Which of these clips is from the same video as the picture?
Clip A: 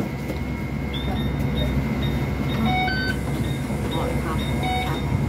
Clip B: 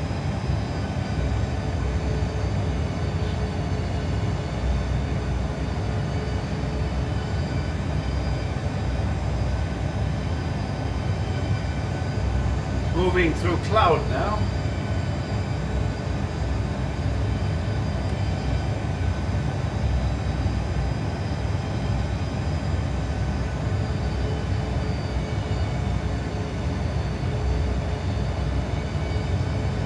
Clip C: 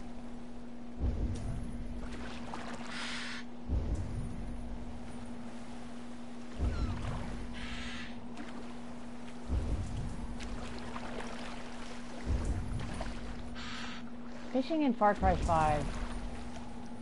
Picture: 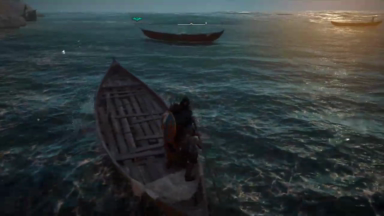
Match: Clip C